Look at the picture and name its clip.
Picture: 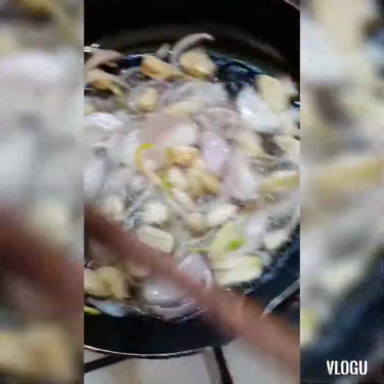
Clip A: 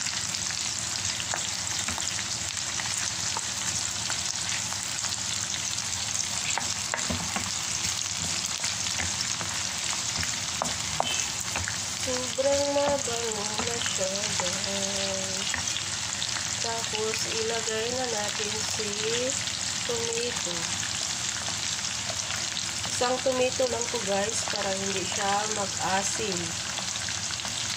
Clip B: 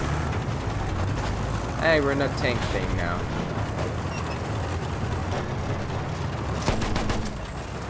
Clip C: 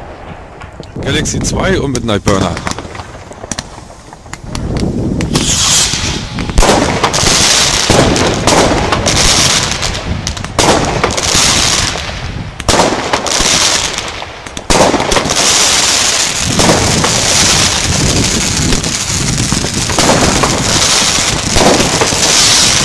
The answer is A